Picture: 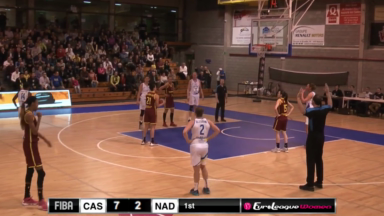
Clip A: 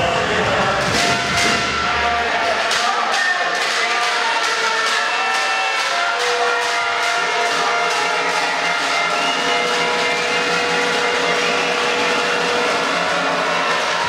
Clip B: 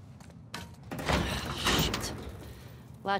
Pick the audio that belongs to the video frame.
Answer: A